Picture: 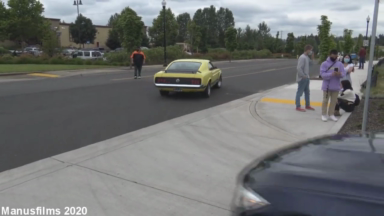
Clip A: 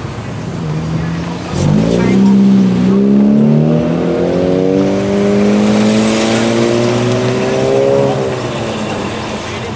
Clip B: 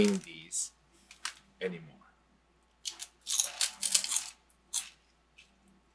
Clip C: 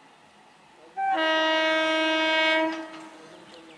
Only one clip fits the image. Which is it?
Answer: A